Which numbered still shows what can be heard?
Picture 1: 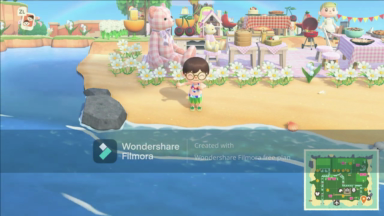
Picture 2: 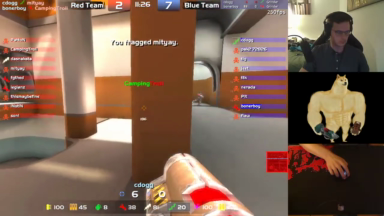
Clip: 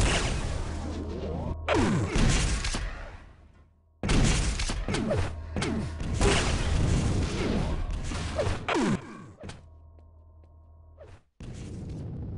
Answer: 2